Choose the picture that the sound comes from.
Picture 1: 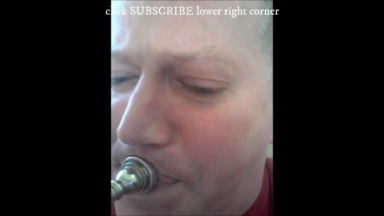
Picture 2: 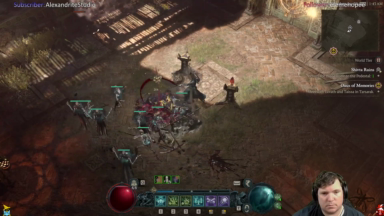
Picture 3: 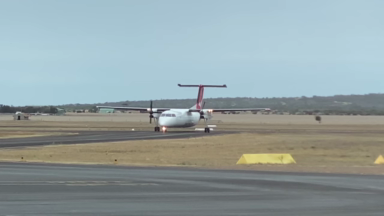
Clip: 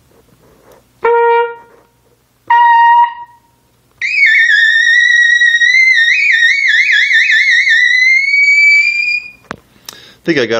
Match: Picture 1